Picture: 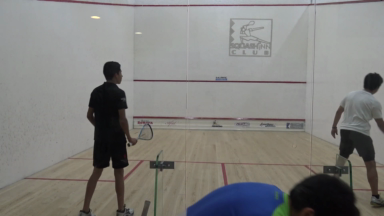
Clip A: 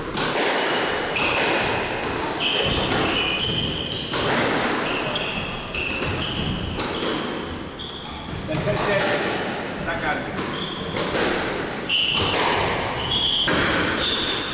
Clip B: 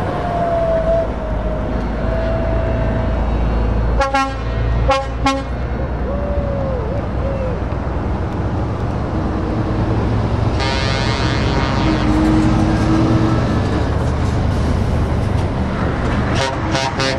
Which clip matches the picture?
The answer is A